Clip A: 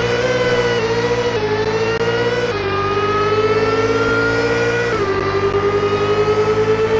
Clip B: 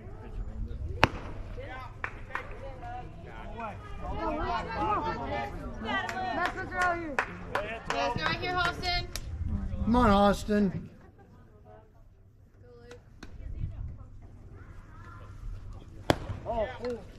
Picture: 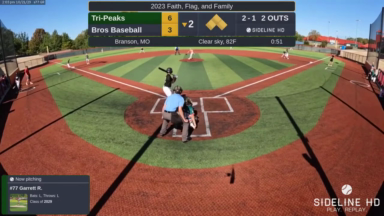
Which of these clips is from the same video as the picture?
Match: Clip B